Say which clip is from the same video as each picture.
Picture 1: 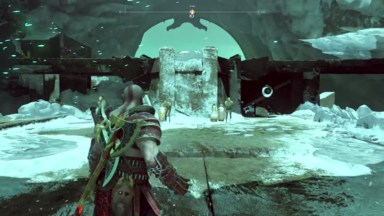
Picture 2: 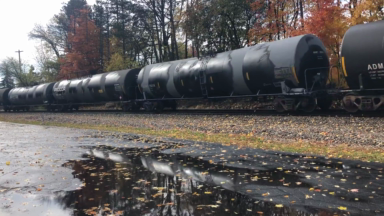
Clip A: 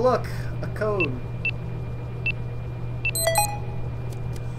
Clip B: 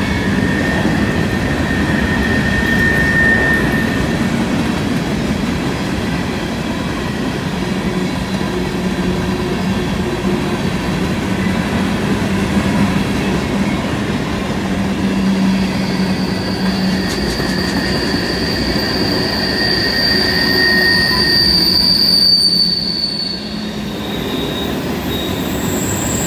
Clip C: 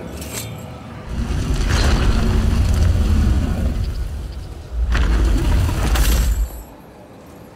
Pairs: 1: C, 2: B